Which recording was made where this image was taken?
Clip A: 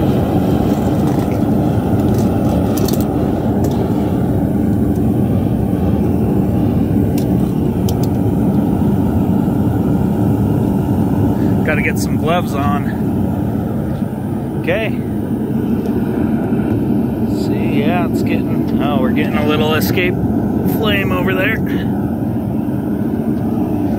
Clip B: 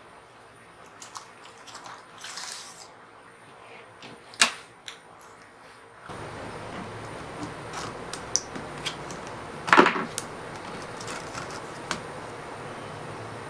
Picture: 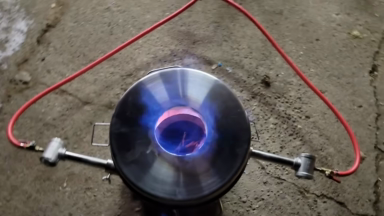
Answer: A